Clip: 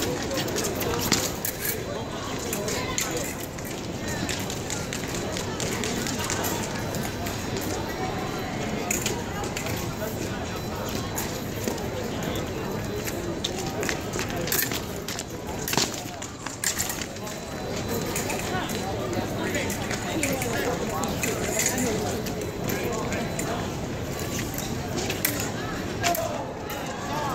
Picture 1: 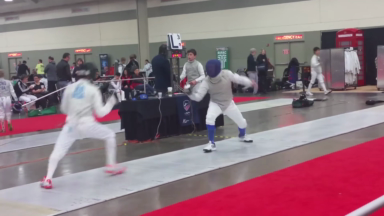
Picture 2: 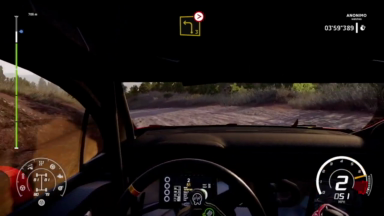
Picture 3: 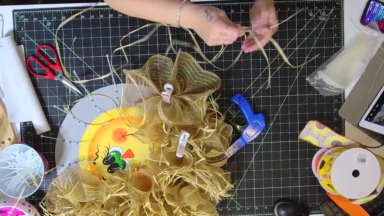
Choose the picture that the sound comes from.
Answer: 1